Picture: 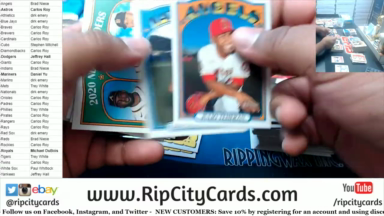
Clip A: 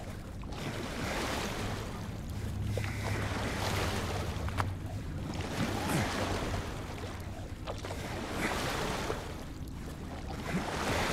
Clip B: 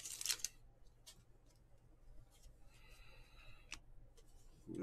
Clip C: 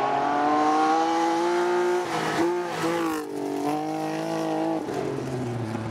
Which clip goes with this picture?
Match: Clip B